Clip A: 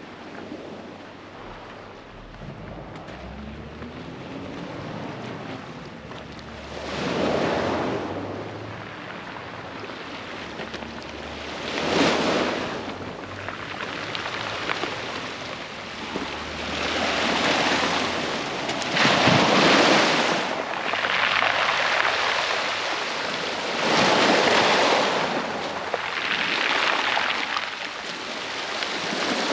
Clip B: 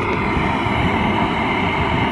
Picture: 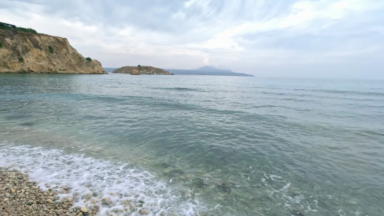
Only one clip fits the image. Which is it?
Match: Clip A